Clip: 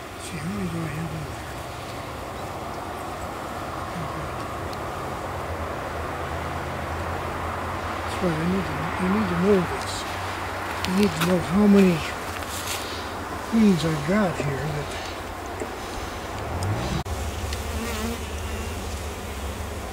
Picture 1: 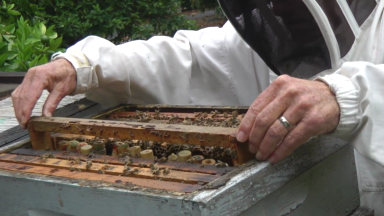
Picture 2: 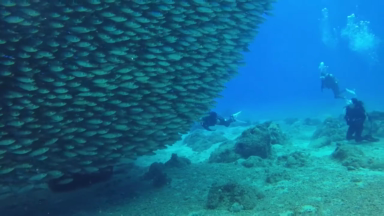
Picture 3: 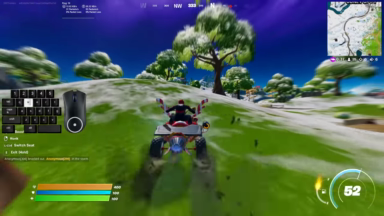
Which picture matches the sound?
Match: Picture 1